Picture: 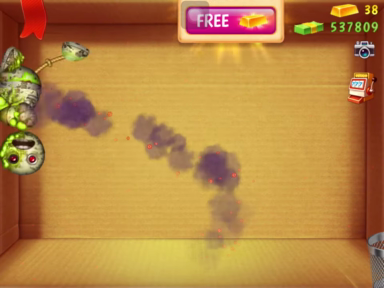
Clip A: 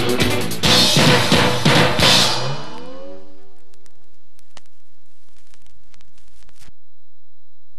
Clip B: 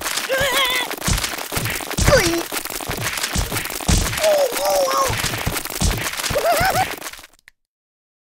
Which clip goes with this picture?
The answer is B